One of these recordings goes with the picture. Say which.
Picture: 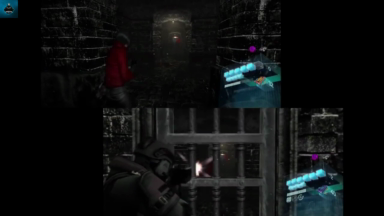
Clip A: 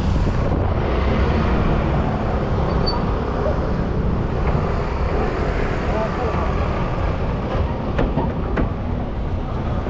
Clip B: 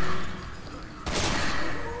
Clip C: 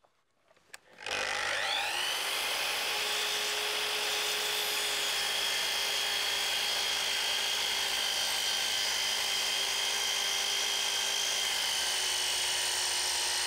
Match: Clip B